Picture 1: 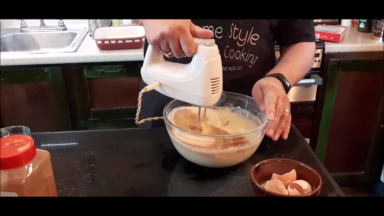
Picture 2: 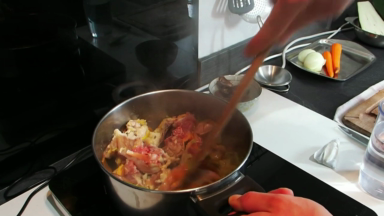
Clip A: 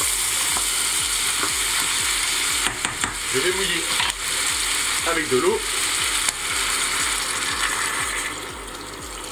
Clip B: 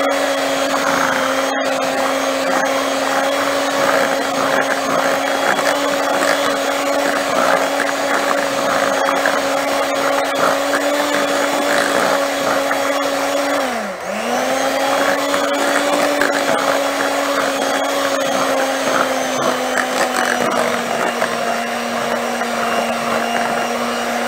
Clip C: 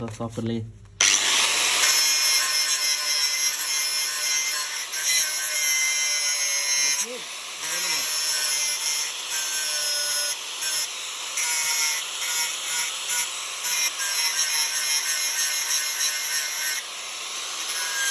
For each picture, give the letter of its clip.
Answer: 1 B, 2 A